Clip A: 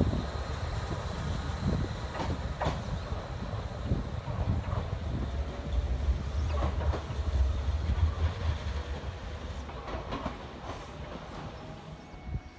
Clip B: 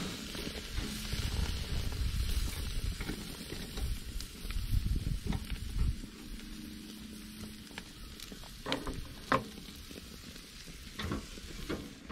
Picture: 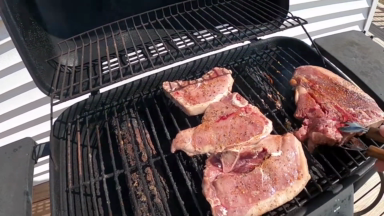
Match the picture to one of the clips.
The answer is B